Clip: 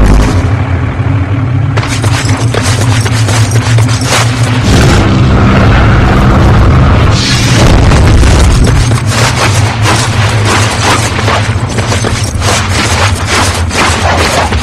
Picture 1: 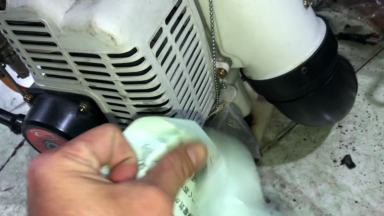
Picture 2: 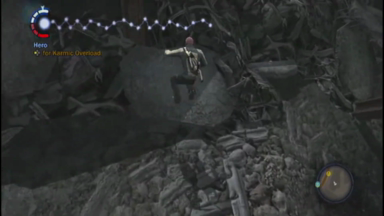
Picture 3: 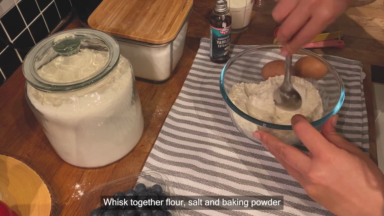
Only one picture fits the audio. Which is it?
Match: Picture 2